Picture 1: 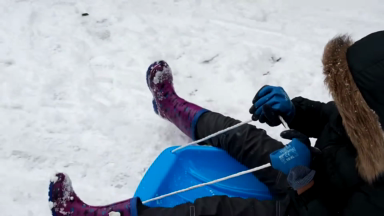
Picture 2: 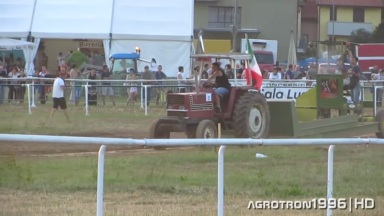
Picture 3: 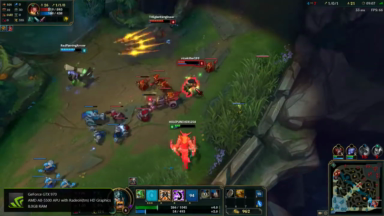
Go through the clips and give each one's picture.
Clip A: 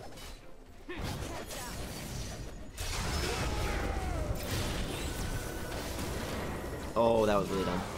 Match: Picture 3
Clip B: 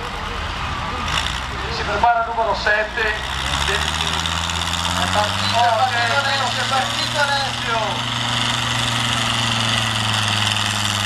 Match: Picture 2